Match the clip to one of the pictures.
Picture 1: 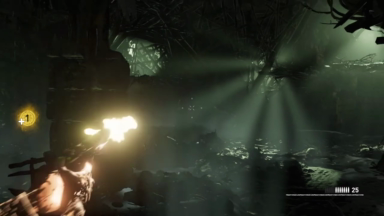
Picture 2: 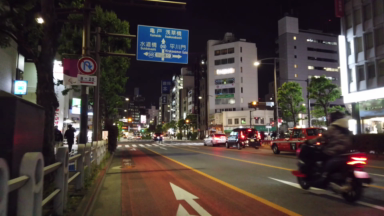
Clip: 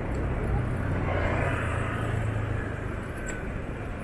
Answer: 2